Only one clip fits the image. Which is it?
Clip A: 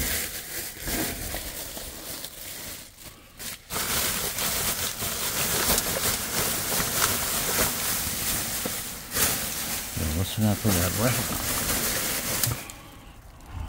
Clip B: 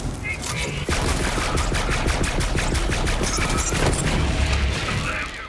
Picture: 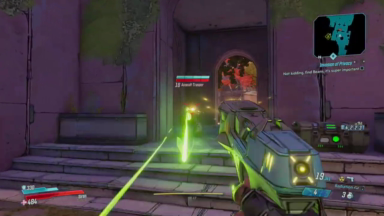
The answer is B